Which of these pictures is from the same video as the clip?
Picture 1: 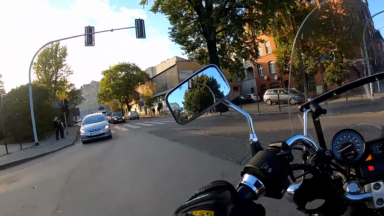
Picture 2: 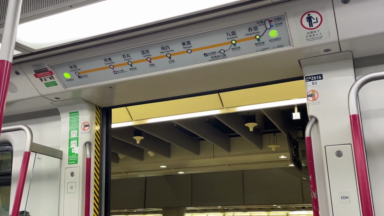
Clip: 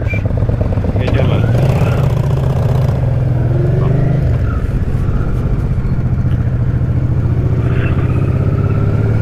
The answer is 1